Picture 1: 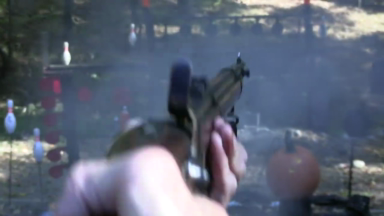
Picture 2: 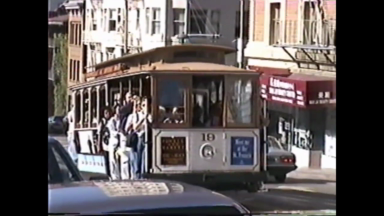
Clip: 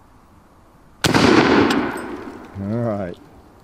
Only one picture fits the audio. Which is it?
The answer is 1